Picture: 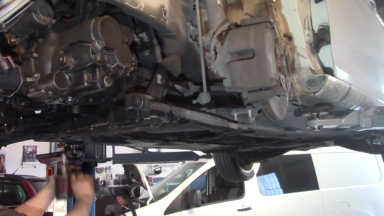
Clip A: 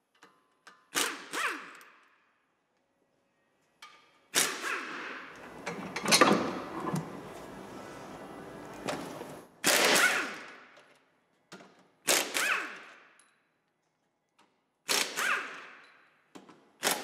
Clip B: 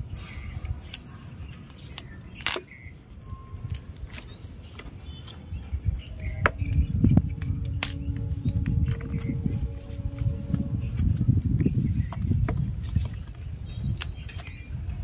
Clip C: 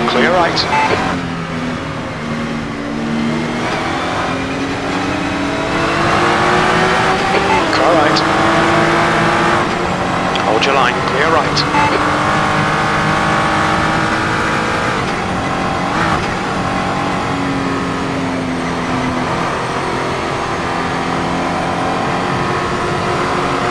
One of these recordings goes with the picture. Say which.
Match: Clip A